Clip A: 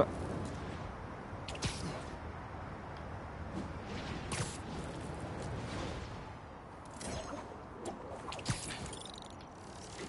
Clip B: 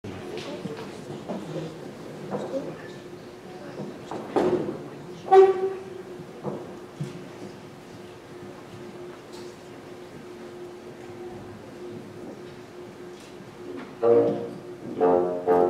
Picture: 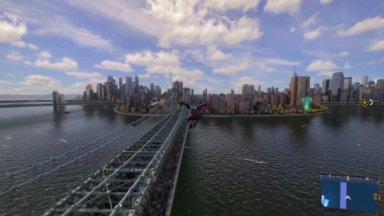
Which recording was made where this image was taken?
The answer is A